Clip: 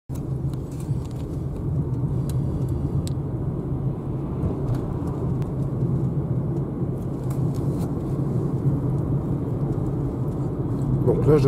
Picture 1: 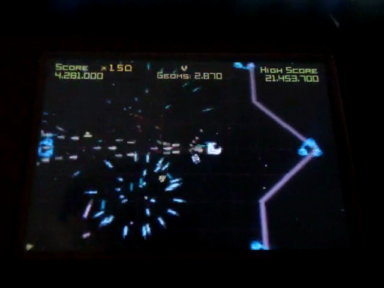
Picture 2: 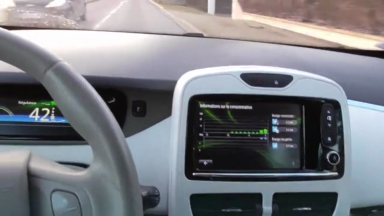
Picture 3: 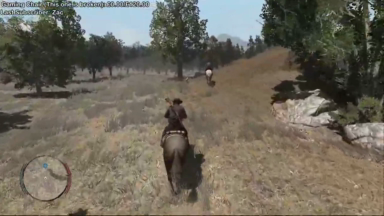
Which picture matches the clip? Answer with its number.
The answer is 2